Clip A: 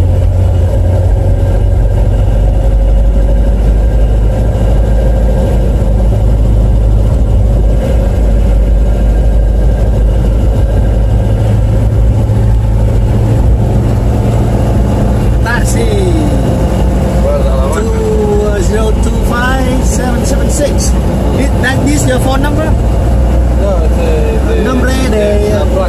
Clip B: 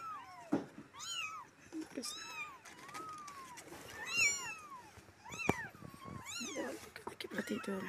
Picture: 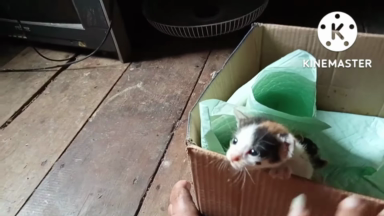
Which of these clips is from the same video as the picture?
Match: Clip B